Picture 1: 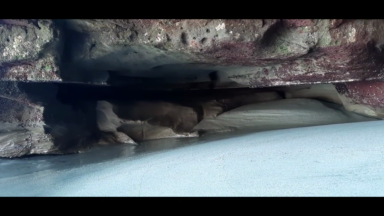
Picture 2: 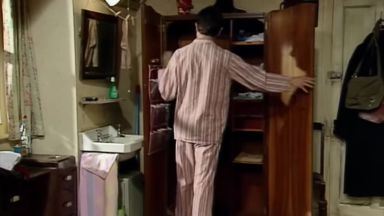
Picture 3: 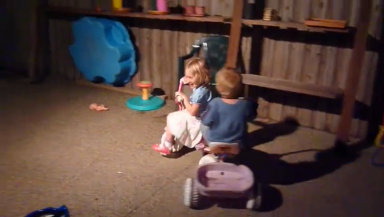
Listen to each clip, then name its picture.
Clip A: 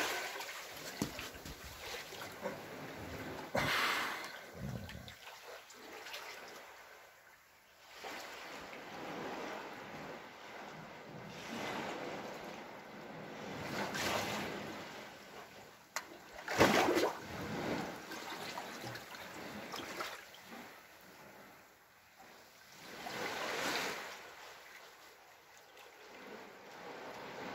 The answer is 1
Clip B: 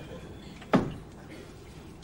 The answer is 2